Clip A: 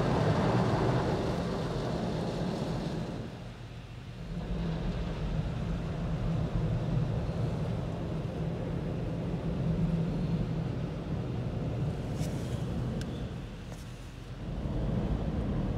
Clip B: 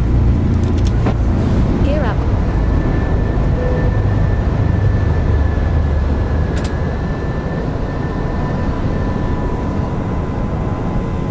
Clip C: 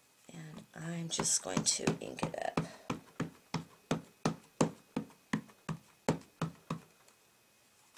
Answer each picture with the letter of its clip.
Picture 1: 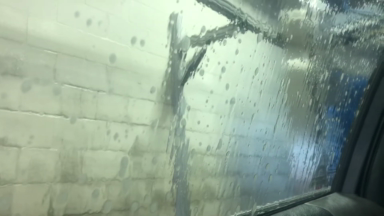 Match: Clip A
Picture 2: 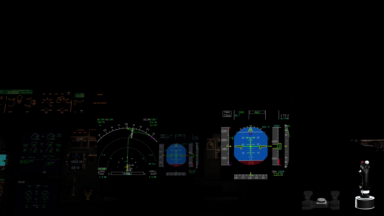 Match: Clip B